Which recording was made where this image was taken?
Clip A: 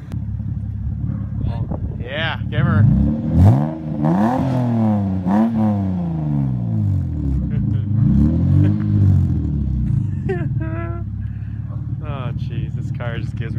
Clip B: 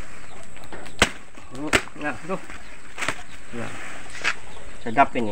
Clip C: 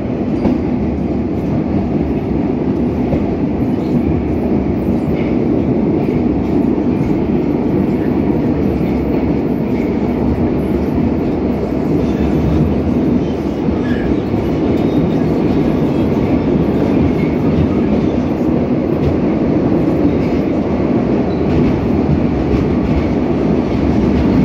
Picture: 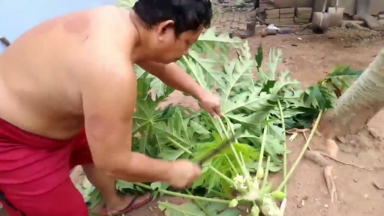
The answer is B